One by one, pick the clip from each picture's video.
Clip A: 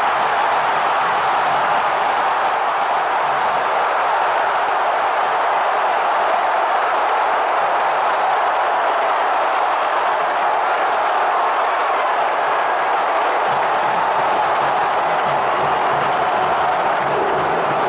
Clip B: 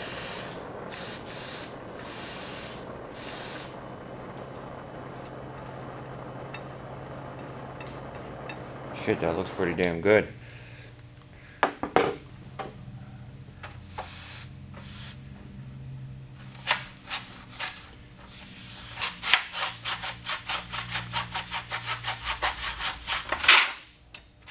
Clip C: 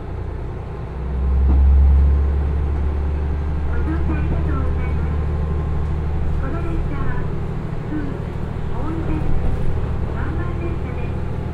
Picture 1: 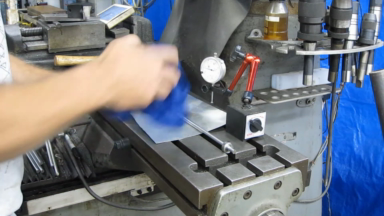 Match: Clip B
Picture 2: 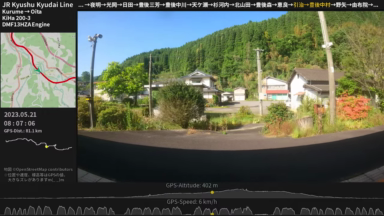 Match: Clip C